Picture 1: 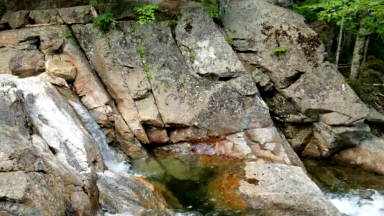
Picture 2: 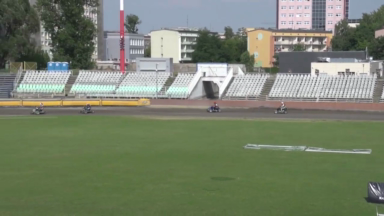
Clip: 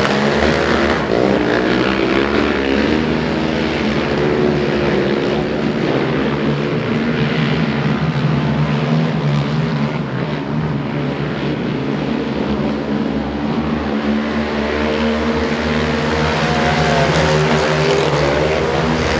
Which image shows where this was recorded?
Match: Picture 2